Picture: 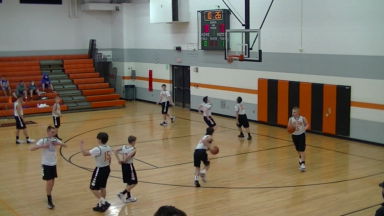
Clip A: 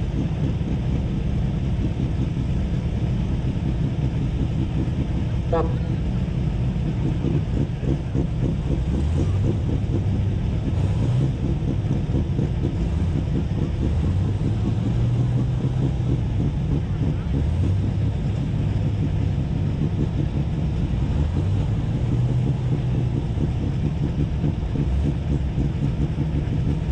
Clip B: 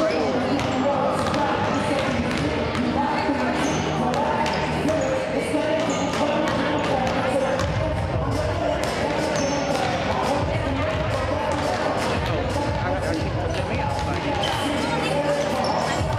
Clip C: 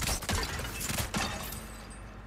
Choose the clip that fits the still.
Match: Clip B